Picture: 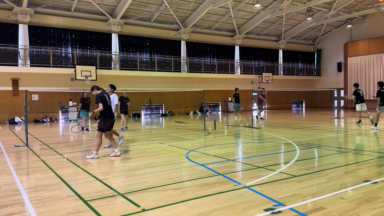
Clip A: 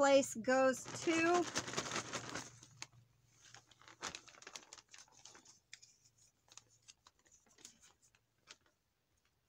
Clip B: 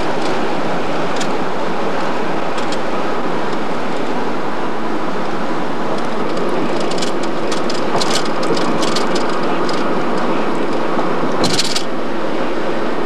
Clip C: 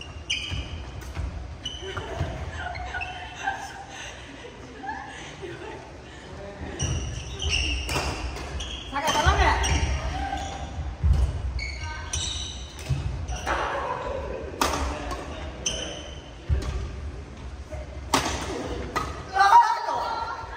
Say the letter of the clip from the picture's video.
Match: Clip C